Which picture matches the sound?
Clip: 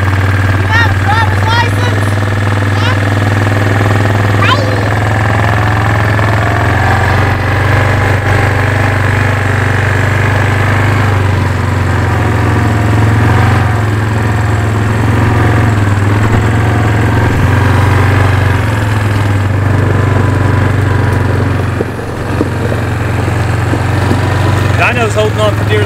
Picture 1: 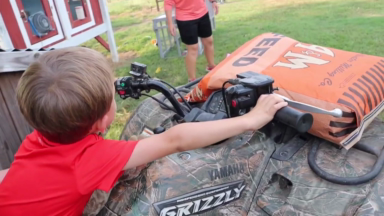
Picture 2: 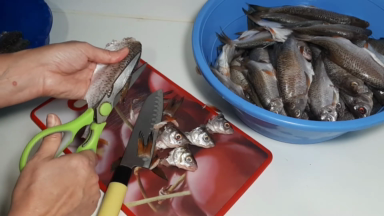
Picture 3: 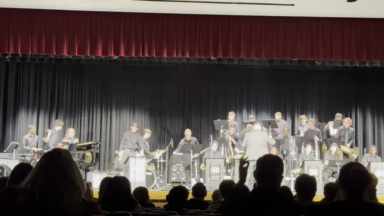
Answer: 1